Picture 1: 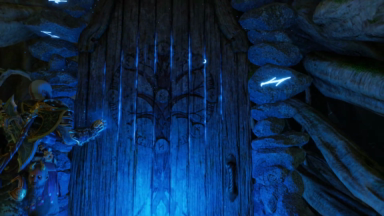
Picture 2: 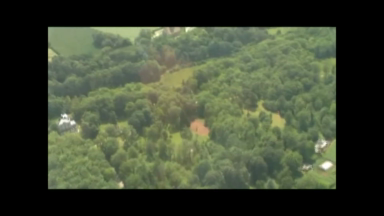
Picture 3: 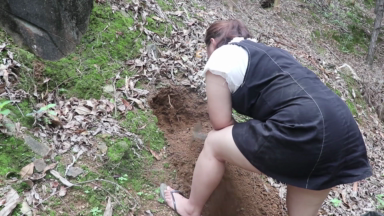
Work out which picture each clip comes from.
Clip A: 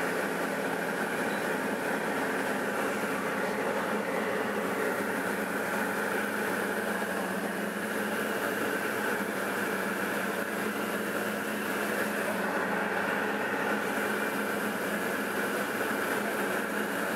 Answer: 2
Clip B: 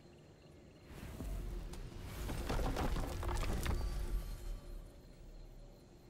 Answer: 1